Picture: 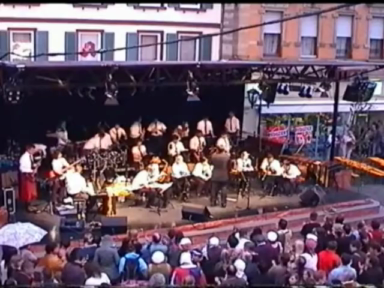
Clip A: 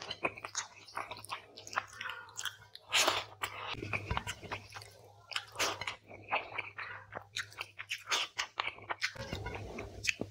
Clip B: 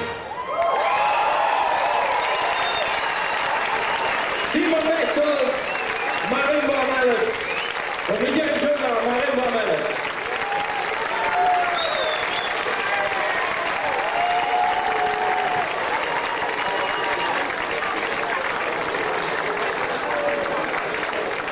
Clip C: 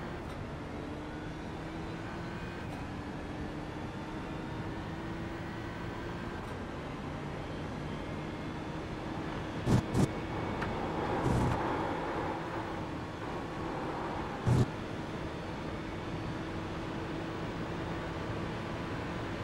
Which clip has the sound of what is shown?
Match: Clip B